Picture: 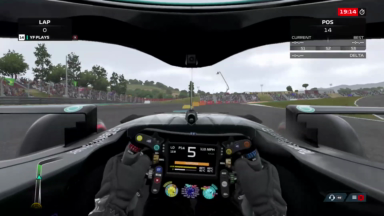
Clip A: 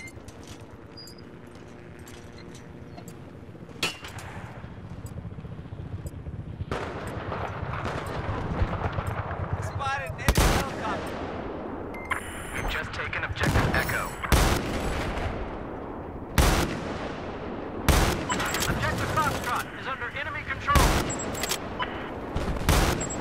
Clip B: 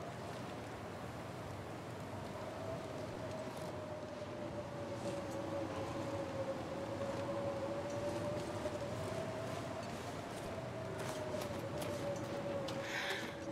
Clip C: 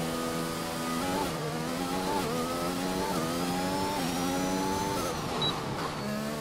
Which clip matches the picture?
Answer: C